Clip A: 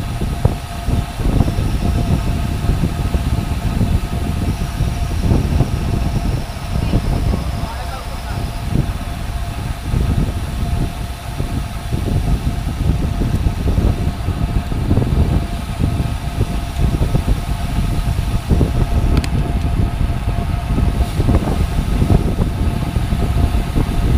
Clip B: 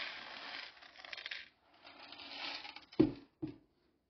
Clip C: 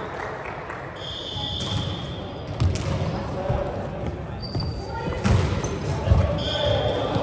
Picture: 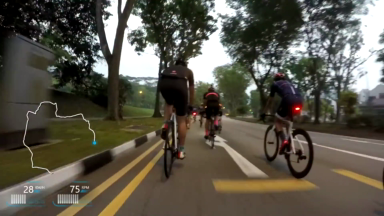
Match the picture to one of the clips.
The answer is A